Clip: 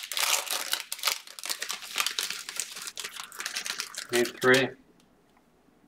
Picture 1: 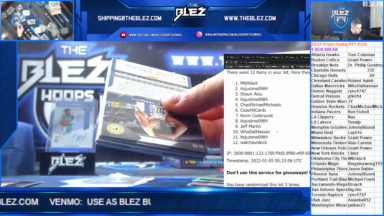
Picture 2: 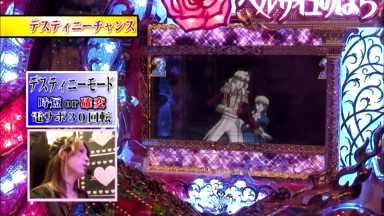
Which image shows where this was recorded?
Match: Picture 1